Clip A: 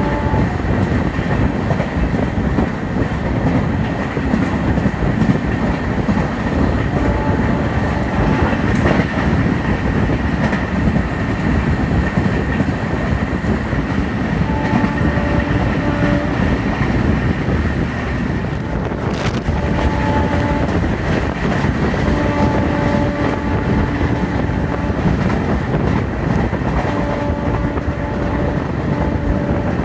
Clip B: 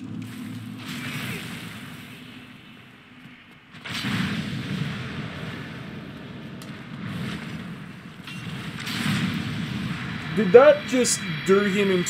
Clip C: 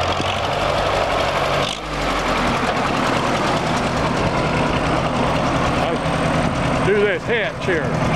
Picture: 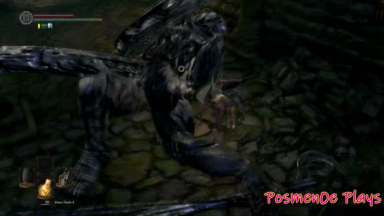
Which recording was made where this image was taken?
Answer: B